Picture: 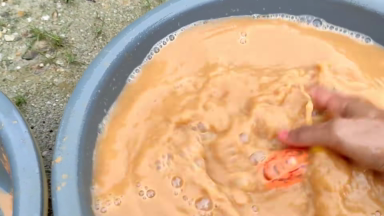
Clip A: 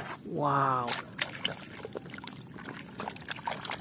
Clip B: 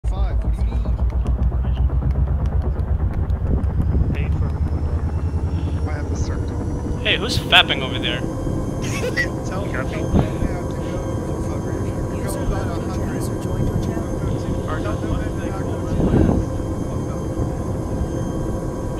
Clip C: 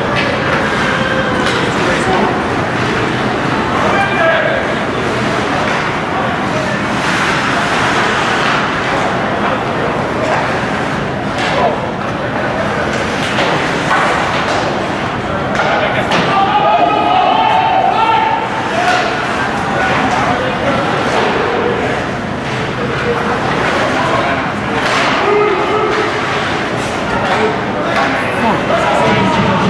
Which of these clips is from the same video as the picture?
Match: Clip A